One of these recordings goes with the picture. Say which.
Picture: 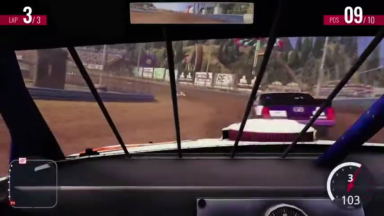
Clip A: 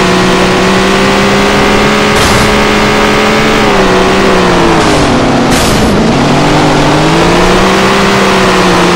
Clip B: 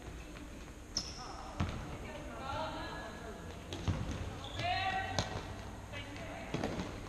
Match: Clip A